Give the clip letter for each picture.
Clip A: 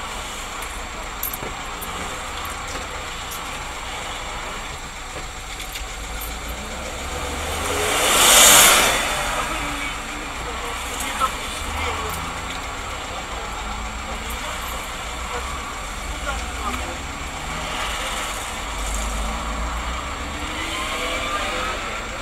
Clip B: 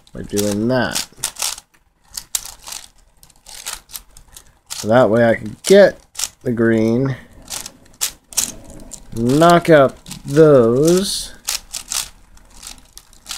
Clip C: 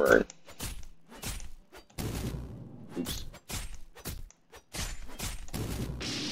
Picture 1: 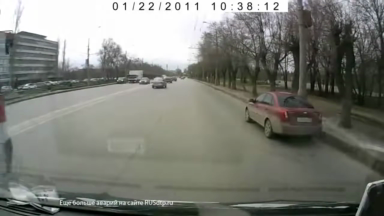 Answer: A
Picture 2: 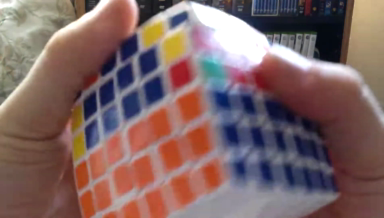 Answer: B